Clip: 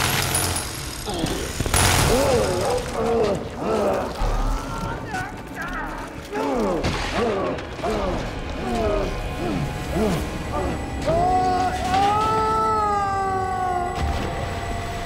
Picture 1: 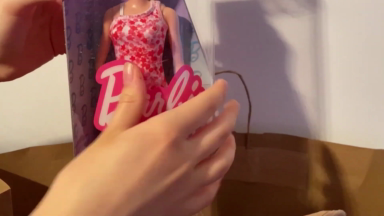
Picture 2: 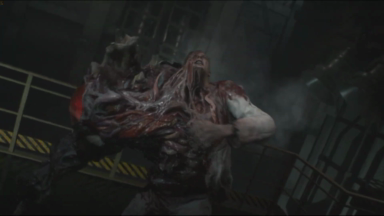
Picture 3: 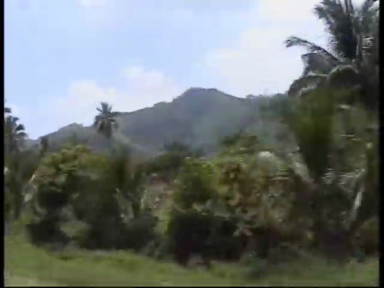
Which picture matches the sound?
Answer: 2